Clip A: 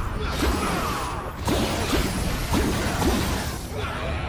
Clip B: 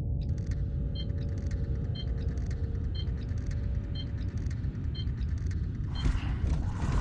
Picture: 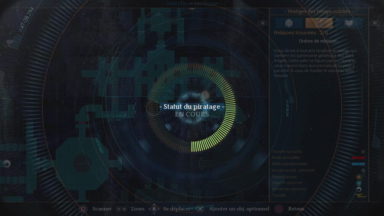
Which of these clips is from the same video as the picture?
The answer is B